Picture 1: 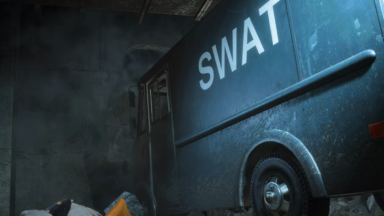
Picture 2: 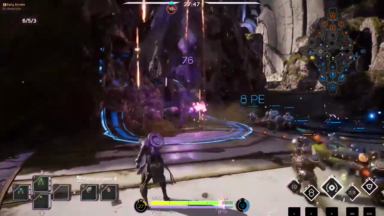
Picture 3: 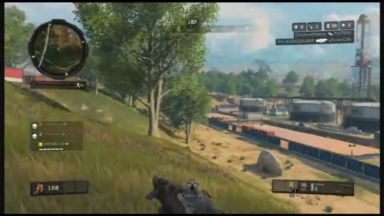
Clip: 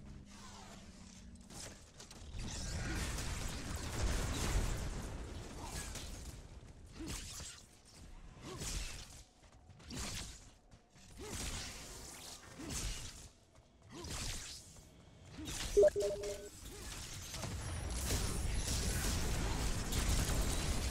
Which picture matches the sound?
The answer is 2